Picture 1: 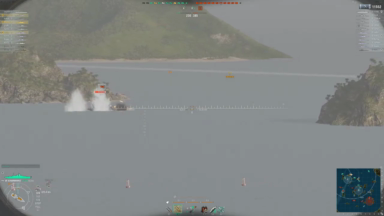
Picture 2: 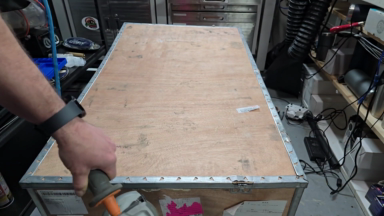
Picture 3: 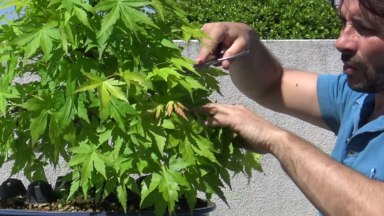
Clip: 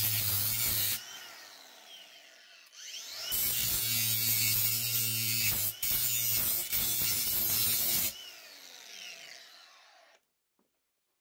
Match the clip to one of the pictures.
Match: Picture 2